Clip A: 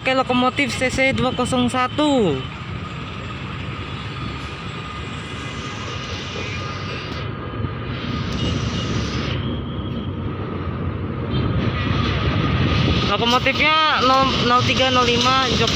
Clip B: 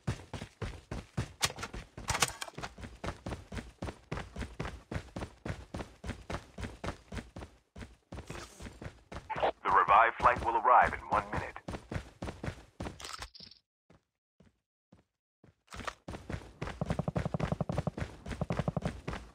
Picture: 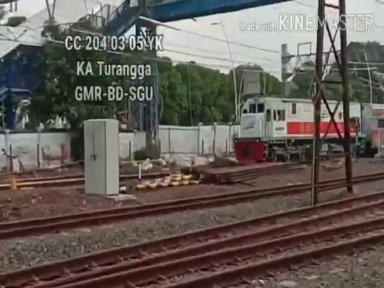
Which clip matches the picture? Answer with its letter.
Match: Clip A